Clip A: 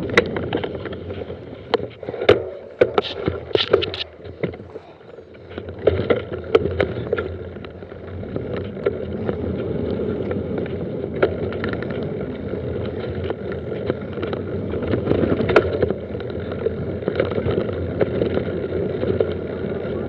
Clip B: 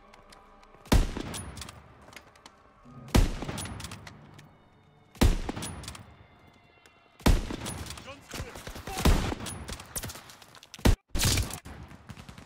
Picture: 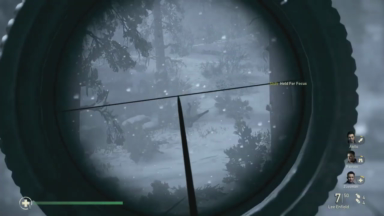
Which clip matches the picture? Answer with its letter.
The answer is B